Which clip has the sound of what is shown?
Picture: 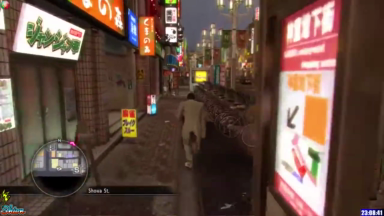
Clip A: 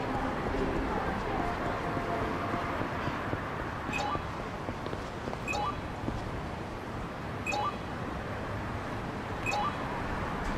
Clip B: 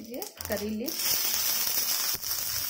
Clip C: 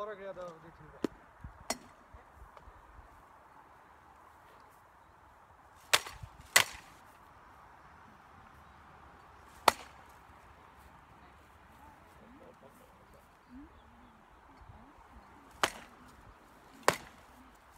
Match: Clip A